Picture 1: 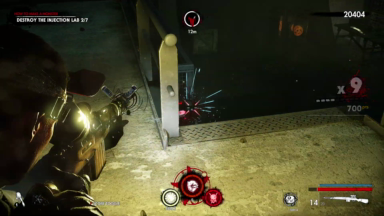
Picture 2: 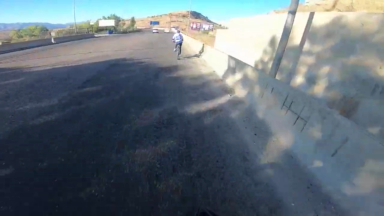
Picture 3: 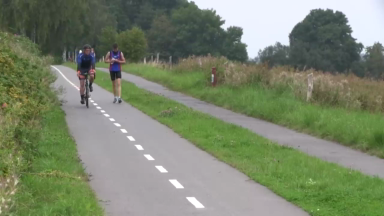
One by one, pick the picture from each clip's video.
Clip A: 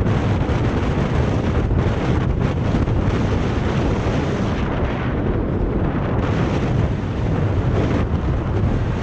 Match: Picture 2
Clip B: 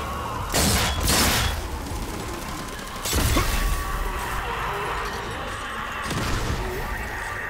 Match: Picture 1